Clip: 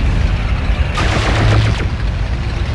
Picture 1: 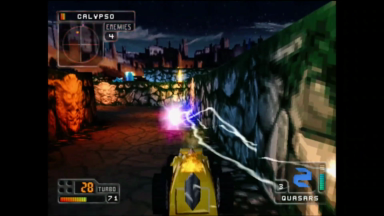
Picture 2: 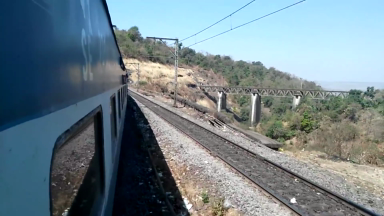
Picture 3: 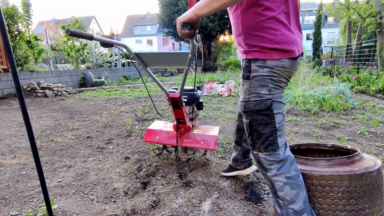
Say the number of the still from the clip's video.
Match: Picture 1